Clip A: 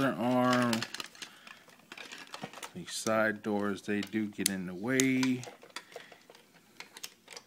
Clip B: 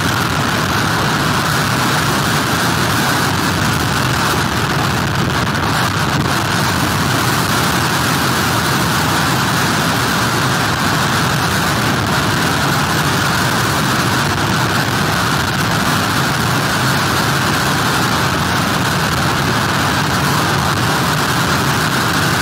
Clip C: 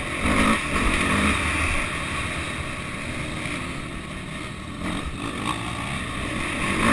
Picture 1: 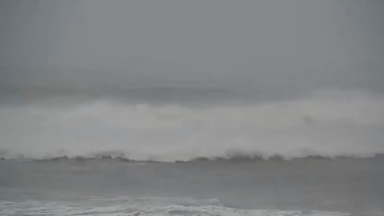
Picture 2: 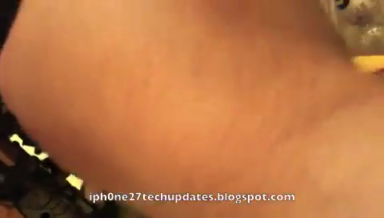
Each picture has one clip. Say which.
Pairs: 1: B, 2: A